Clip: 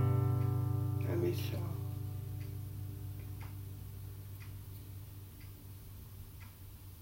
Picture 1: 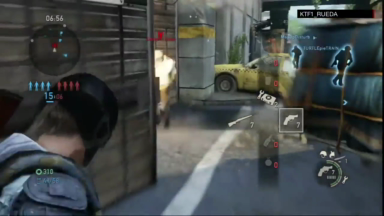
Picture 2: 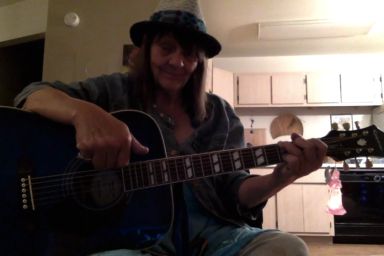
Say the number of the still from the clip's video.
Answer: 2